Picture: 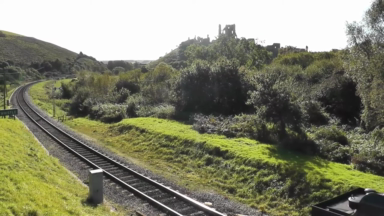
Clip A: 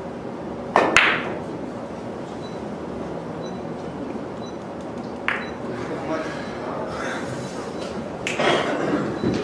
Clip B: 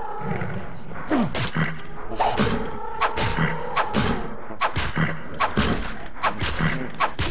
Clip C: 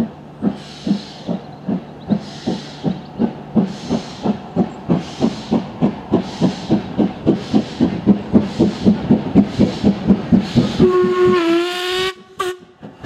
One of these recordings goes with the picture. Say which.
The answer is C